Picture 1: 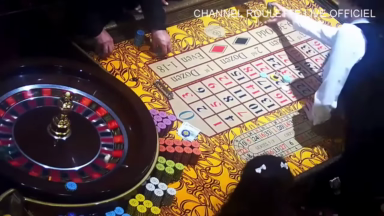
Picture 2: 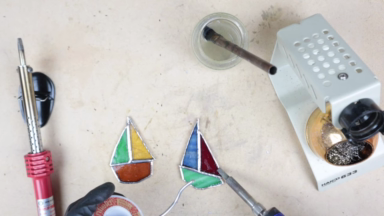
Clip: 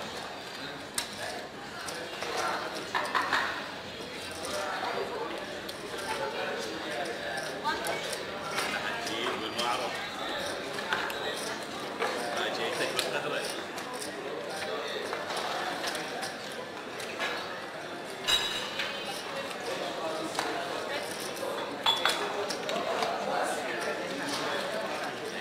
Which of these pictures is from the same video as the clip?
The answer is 1